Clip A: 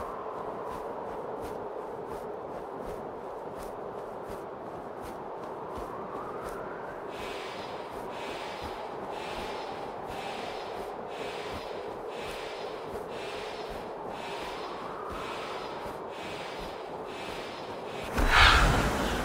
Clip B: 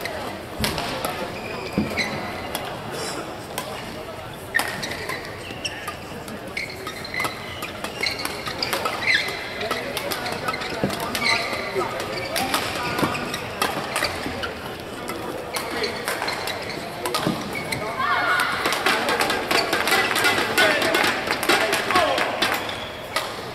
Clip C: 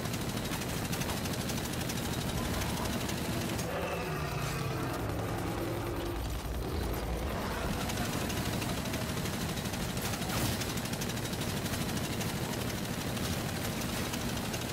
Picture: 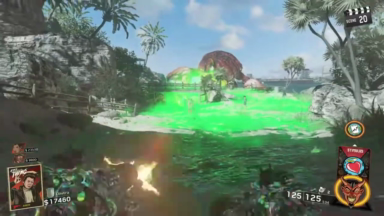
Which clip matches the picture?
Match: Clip C